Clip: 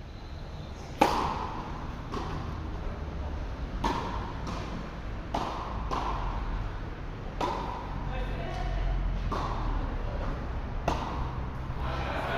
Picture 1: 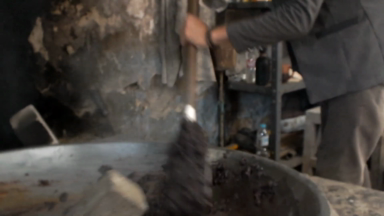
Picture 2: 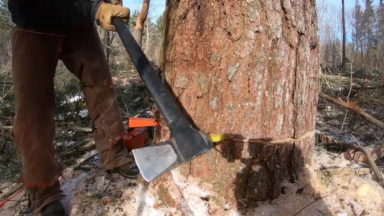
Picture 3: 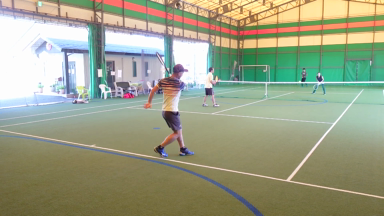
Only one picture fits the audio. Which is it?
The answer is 3